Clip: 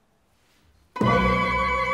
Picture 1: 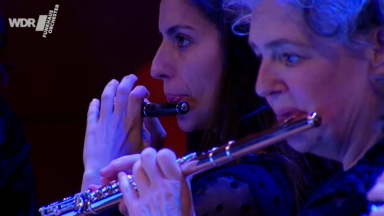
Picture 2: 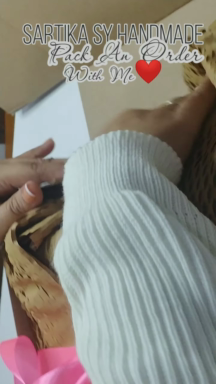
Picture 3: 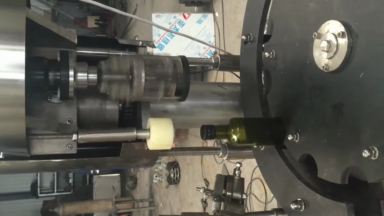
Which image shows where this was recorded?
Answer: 1